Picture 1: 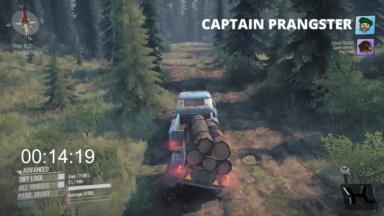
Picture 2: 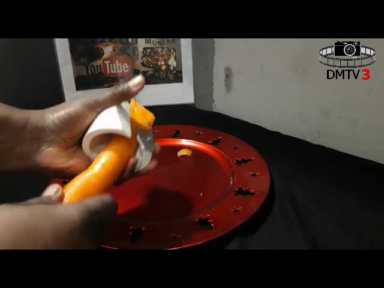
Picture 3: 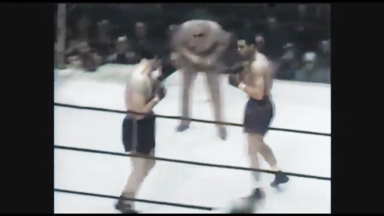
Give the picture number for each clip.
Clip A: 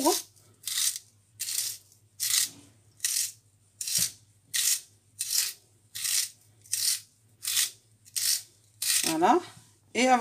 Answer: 2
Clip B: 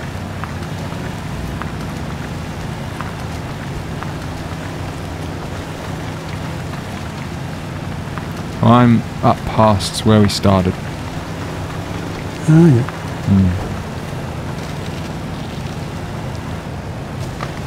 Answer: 1